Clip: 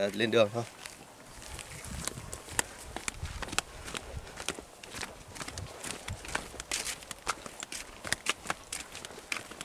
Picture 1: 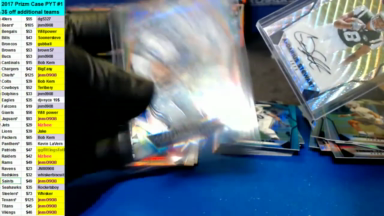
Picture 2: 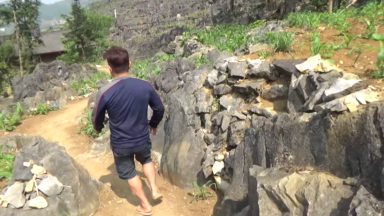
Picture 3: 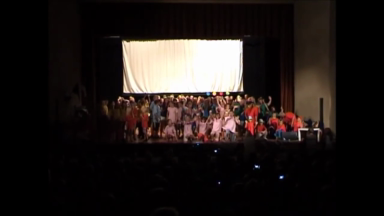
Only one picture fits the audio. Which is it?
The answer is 2